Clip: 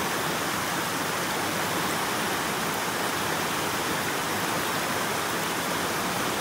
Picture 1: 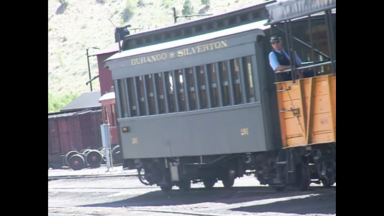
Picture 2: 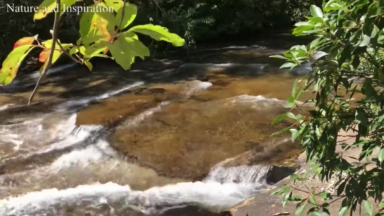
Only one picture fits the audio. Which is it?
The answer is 2